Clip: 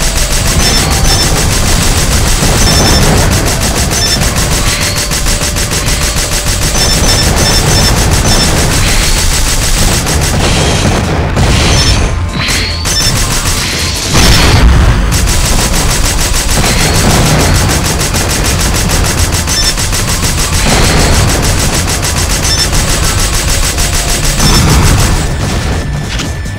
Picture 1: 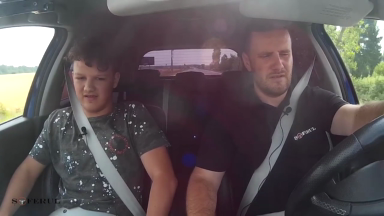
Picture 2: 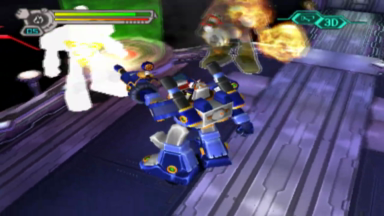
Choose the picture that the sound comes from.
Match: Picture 2